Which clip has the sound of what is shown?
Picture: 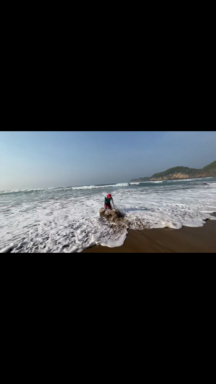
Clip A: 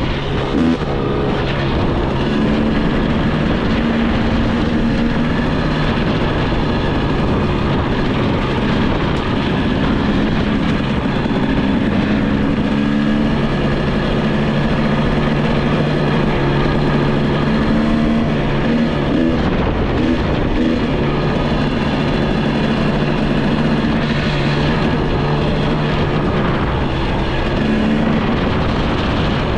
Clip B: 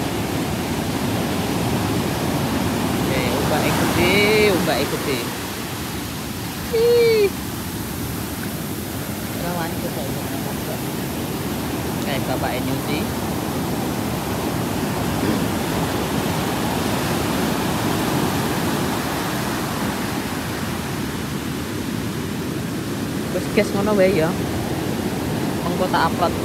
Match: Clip B